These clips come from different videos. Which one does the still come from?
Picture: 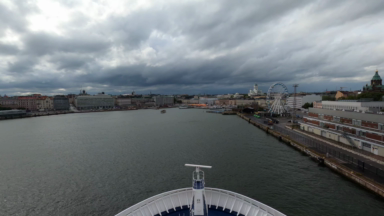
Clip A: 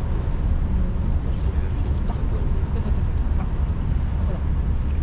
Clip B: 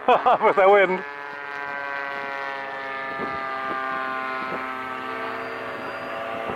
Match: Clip A